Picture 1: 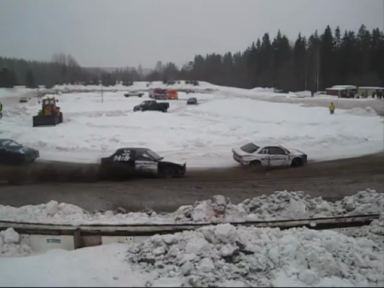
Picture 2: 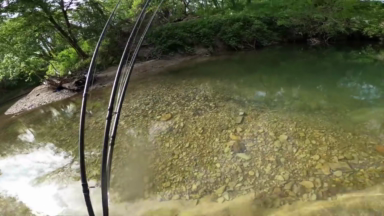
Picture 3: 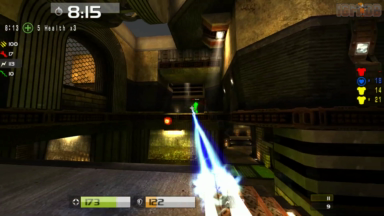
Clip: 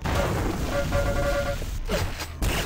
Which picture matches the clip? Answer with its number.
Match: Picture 3